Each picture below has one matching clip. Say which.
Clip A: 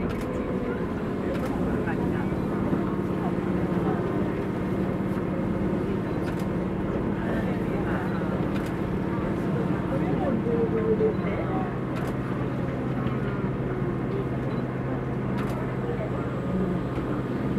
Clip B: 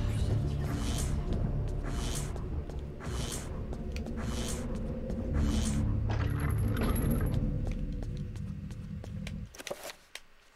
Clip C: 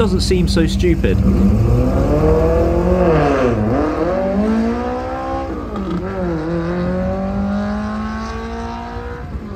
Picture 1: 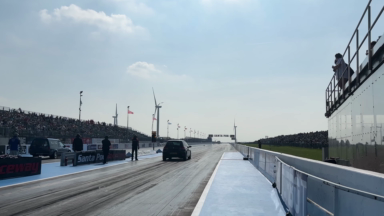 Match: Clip C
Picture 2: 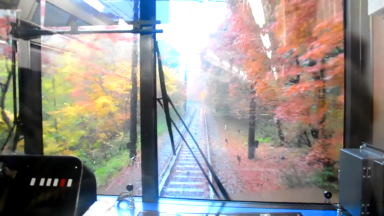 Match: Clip A